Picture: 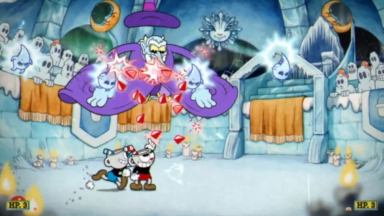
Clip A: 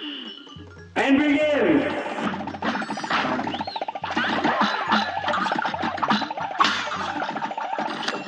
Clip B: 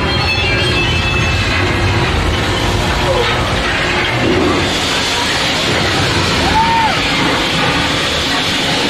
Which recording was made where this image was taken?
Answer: A